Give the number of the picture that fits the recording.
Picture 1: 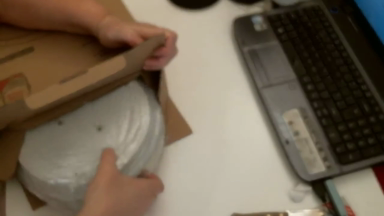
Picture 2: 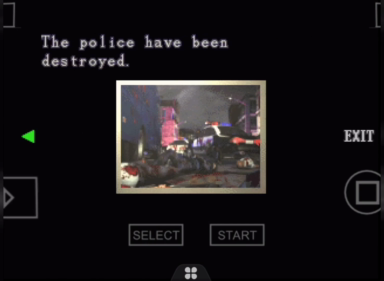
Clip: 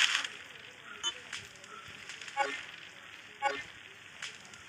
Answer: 2